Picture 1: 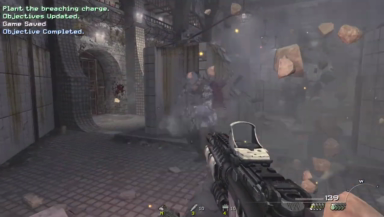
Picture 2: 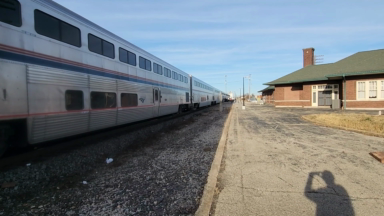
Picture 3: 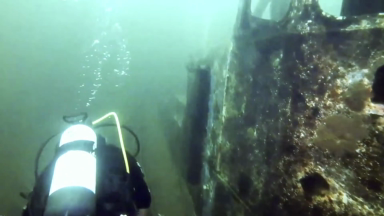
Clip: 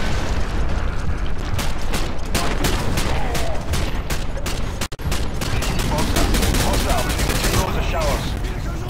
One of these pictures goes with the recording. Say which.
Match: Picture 1